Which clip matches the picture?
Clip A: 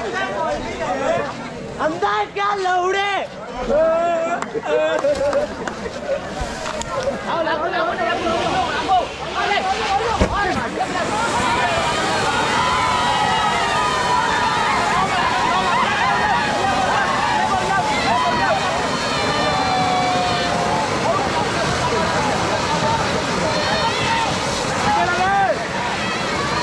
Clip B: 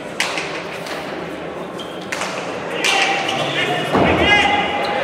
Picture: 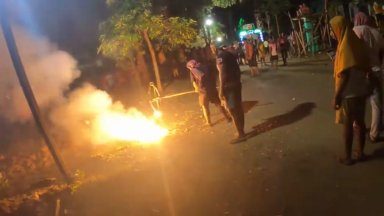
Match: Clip A